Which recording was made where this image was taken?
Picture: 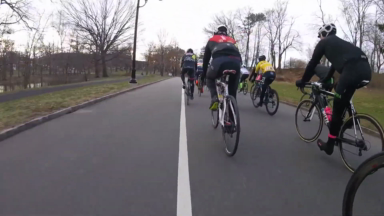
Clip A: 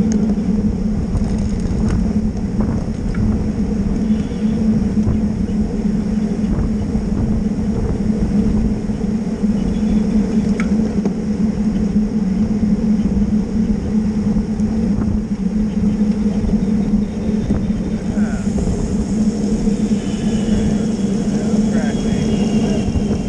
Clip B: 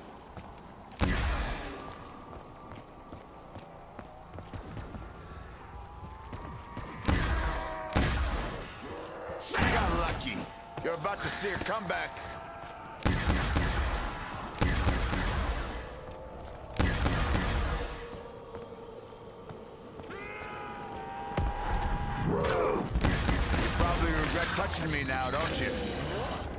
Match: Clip A